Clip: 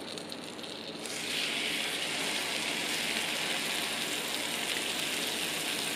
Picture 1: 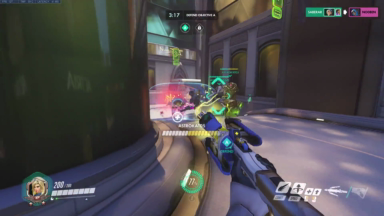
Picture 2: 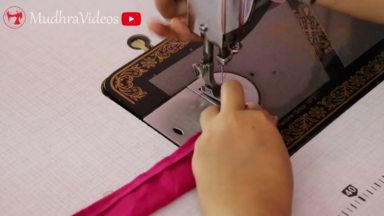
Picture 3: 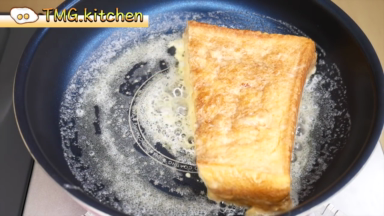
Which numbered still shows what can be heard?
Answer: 3